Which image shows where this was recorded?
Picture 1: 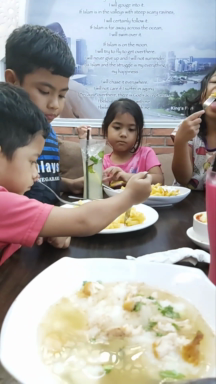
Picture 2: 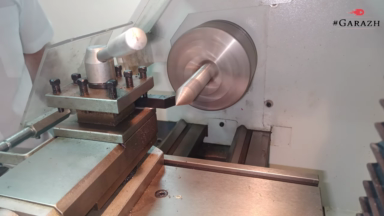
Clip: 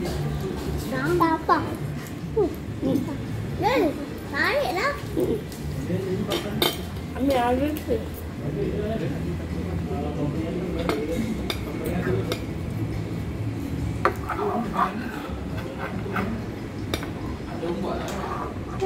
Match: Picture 1